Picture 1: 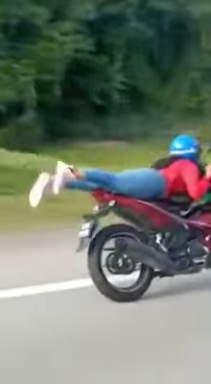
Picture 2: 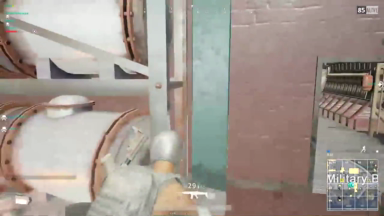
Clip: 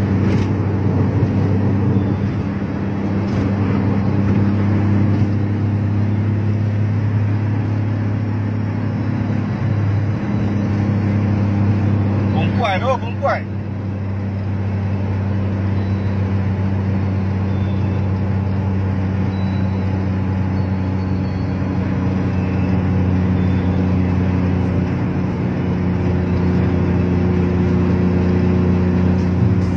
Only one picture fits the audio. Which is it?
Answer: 1